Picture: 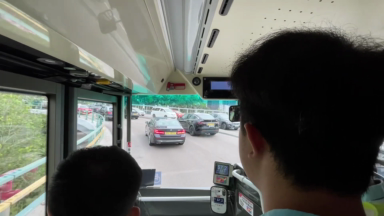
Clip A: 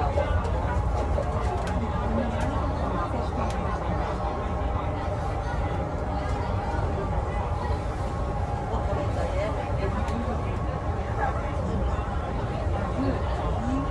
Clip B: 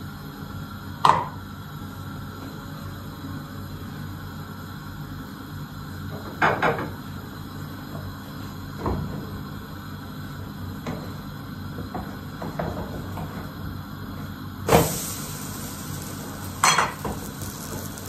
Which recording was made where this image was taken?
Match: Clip A